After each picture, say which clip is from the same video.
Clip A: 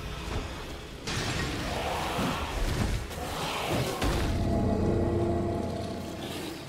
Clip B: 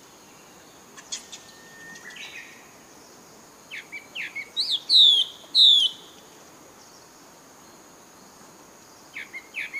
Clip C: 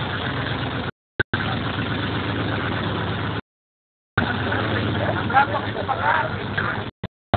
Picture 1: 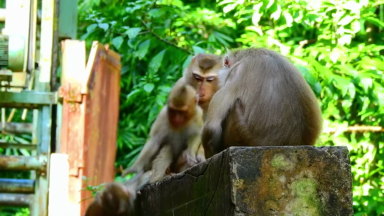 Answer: B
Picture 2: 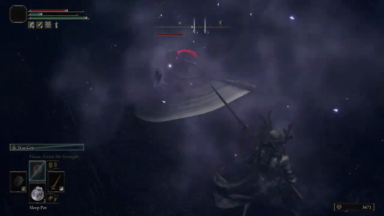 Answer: A